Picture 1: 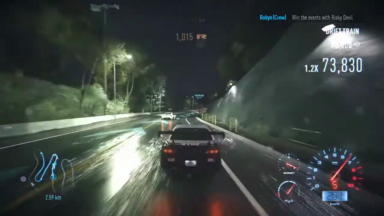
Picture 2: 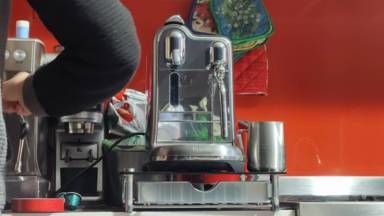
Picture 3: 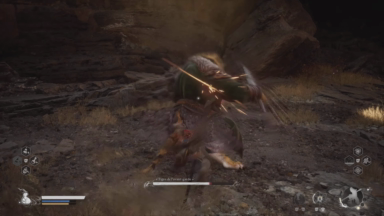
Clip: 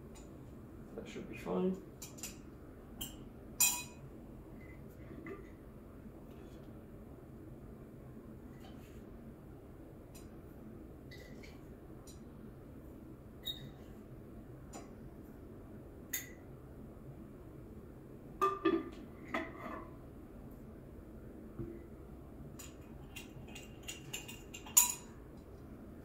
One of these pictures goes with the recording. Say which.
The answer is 2